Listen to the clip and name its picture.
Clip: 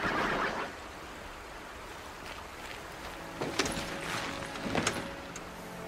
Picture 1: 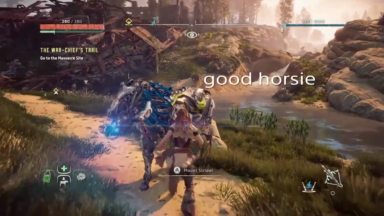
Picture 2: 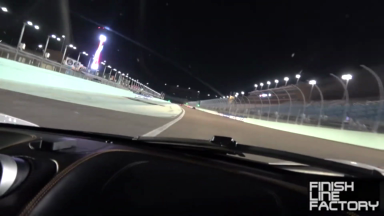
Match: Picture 1